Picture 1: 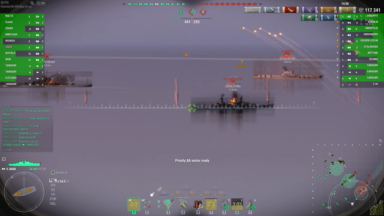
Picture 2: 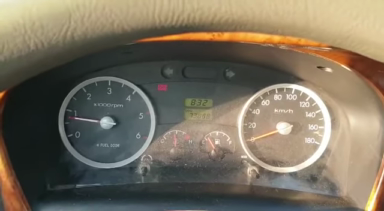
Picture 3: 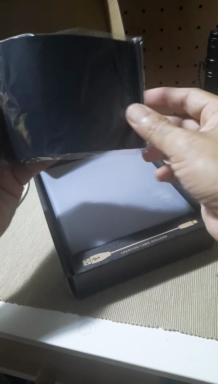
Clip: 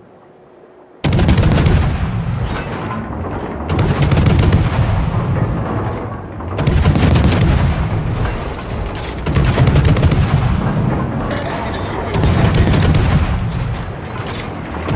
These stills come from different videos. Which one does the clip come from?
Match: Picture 1